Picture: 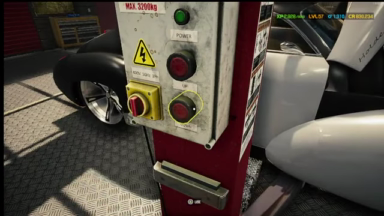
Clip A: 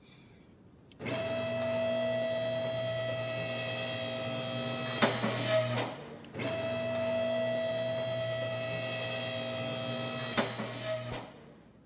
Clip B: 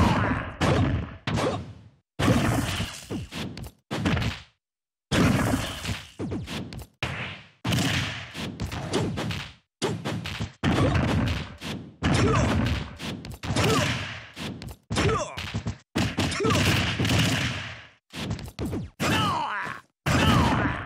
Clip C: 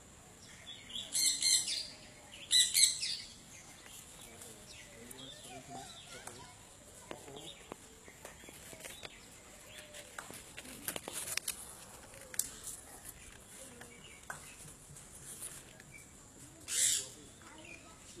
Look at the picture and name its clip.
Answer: A